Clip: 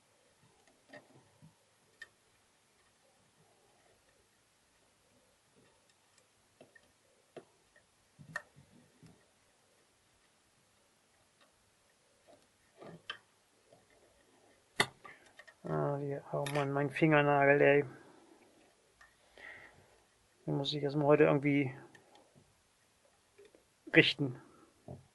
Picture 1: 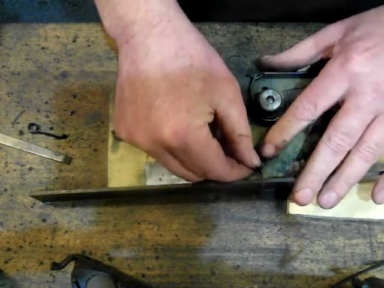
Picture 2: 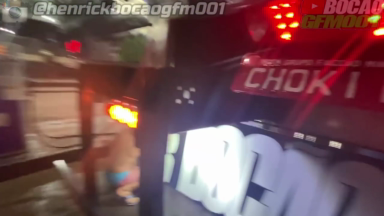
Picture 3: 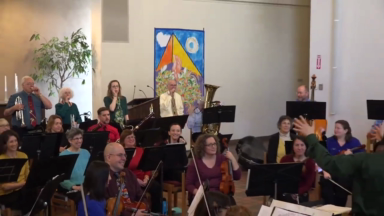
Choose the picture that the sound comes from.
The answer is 1